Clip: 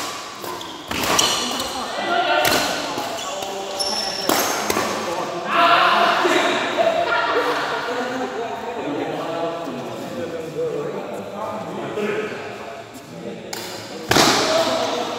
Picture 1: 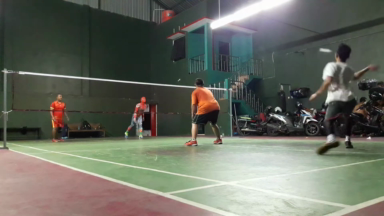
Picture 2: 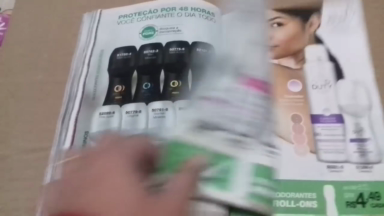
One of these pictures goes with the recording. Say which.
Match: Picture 1